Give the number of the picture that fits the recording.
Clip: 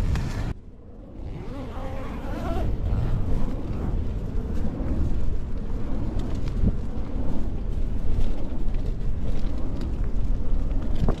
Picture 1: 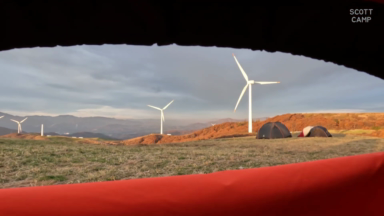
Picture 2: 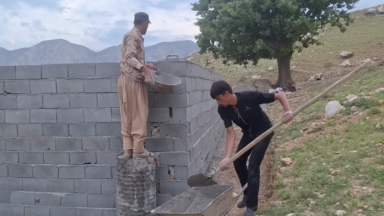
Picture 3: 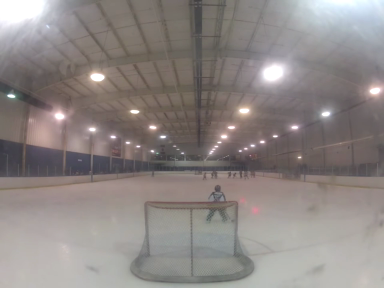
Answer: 1